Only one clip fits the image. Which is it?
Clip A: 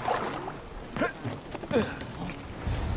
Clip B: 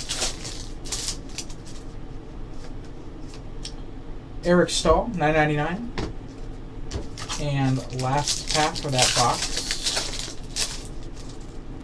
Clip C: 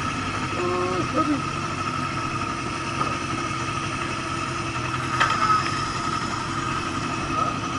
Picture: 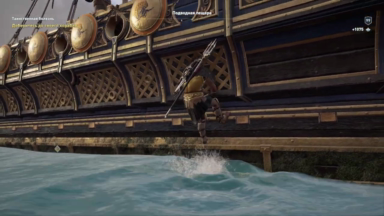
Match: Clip A